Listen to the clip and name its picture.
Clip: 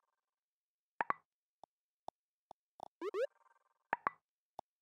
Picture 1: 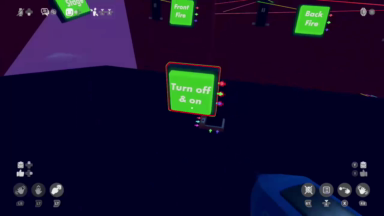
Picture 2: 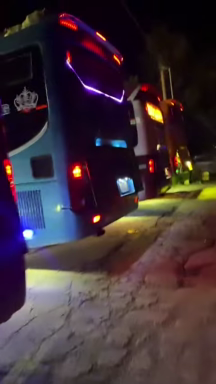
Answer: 1